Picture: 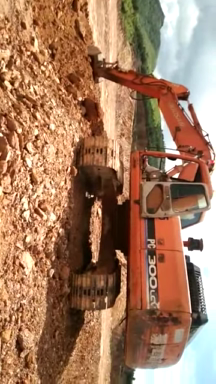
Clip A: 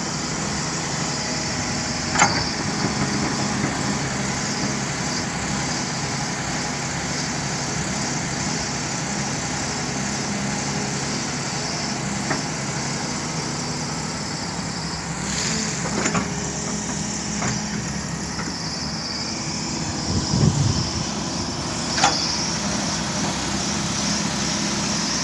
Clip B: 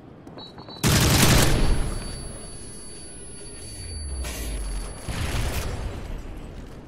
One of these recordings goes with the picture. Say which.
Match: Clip A